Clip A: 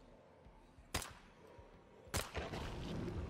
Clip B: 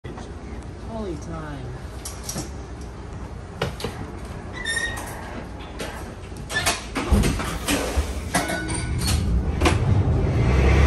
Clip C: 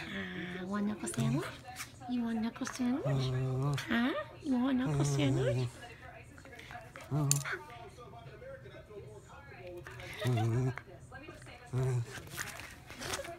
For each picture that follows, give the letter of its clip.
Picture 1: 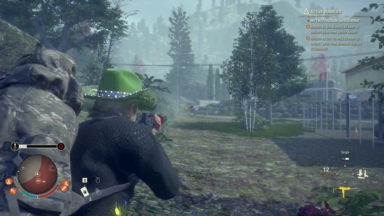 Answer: A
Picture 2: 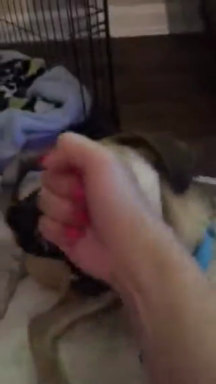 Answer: C